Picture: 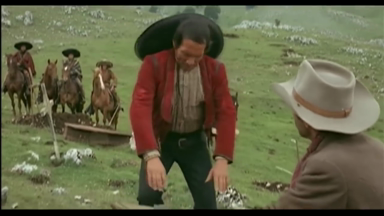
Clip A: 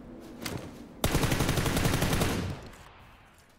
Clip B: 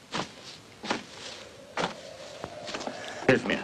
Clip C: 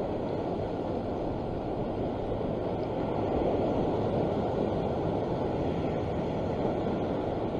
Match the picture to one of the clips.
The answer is B